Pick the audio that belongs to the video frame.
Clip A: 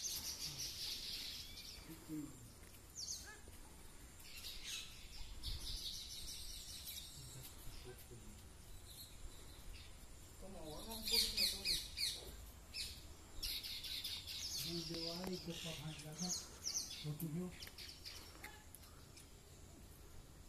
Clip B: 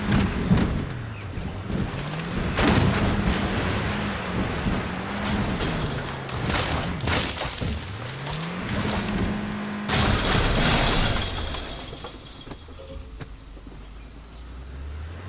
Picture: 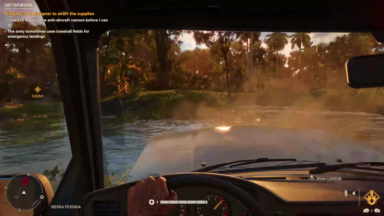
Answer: B